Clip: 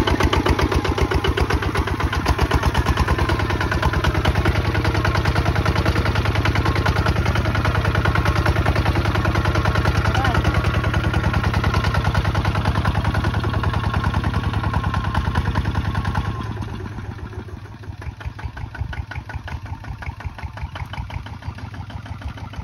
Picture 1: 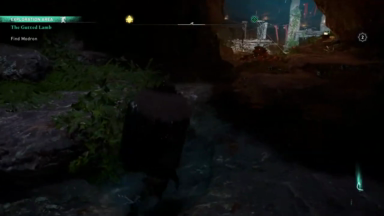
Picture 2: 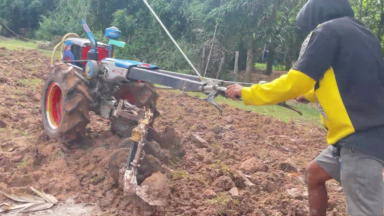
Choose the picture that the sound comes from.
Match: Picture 2